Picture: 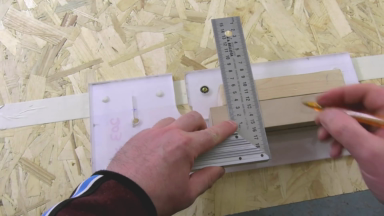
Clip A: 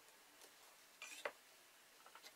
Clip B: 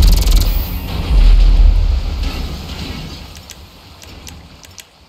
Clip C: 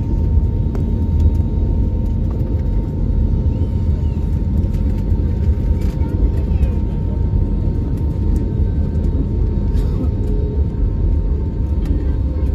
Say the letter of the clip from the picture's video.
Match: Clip A